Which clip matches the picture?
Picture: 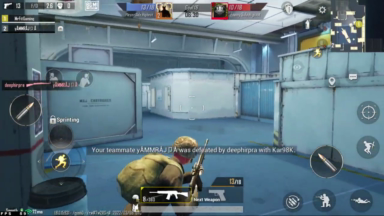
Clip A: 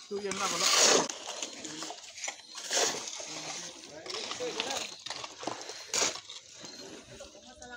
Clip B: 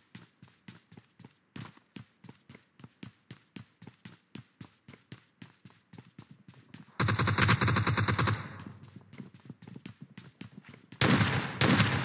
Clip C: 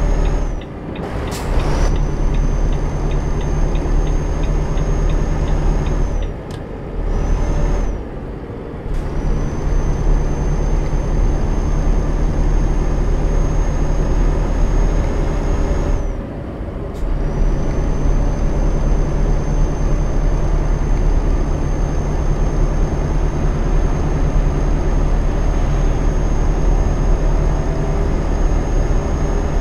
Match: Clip B